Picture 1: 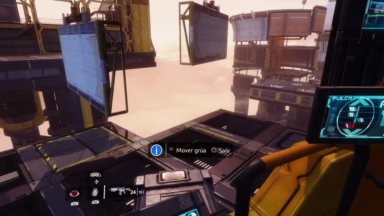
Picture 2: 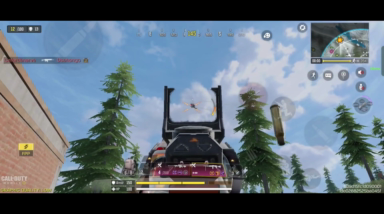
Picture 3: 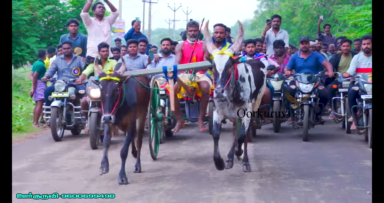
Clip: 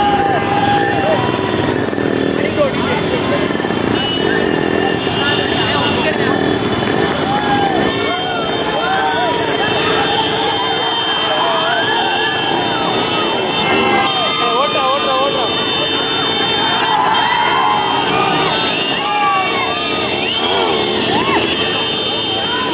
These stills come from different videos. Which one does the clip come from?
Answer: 3